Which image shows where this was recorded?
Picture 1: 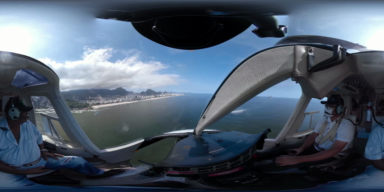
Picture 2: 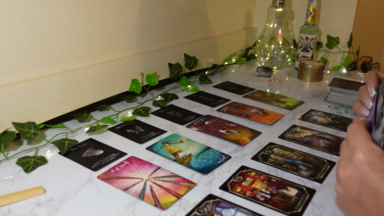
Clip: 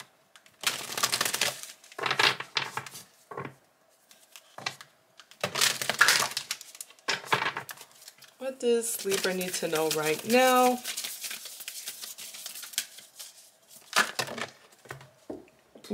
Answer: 2